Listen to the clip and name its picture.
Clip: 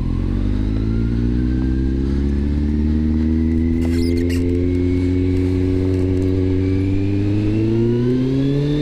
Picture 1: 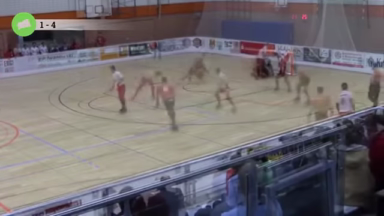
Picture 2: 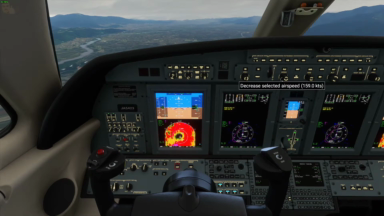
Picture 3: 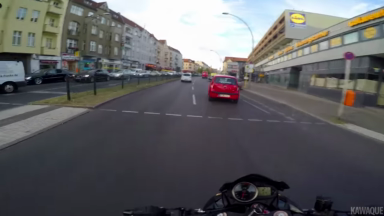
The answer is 3